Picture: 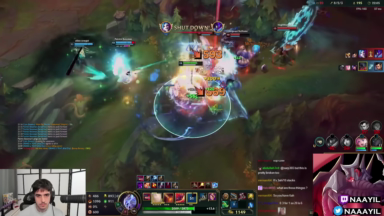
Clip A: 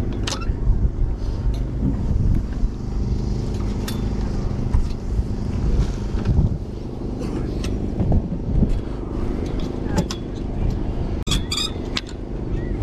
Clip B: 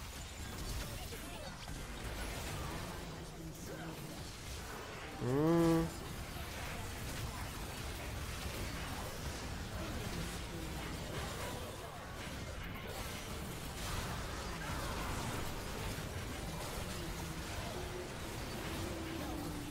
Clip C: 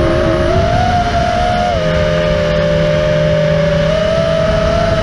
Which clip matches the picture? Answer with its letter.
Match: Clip B